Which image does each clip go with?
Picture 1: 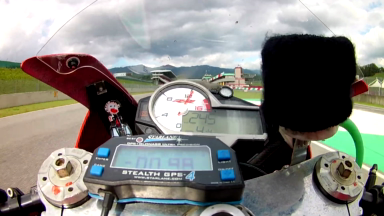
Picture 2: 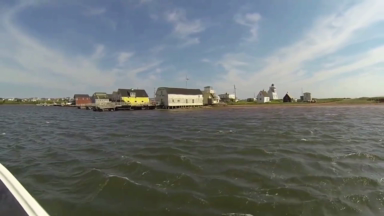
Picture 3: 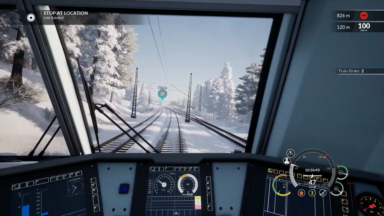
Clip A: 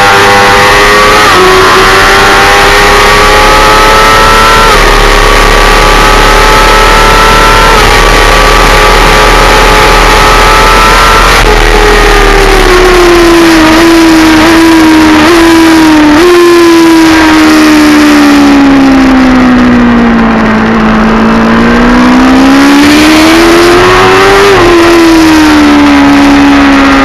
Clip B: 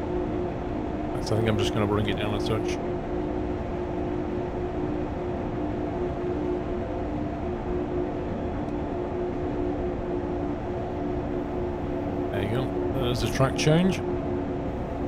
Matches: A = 1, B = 3